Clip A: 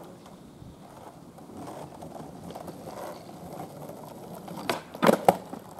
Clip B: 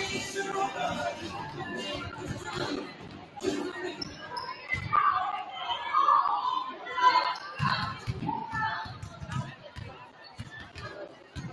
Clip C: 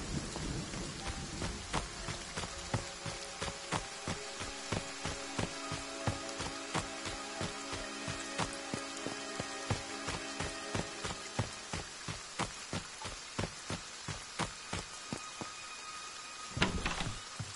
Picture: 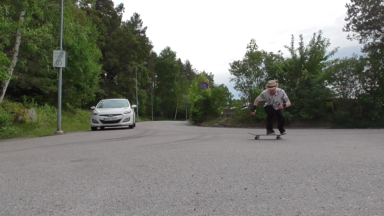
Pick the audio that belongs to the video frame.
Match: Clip A